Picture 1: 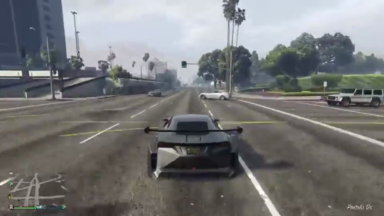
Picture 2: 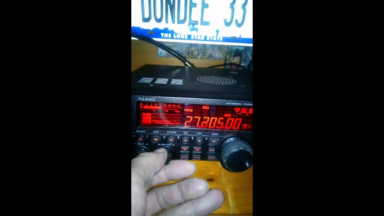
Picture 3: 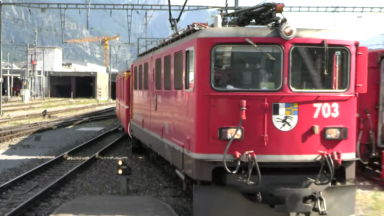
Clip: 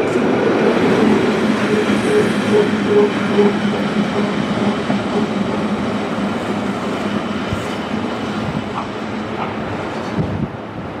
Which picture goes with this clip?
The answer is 3